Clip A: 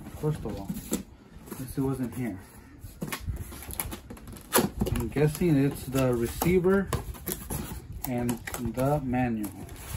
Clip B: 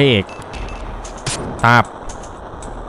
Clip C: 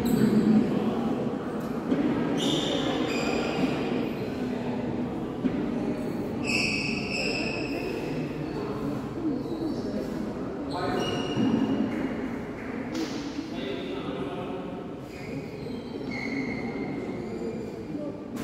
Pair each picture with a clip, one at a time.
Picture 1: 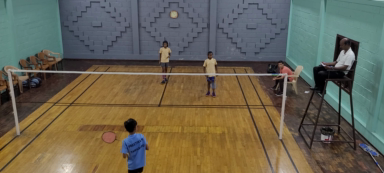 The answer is C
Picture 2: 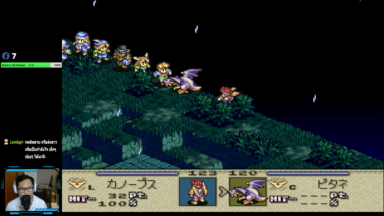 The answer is B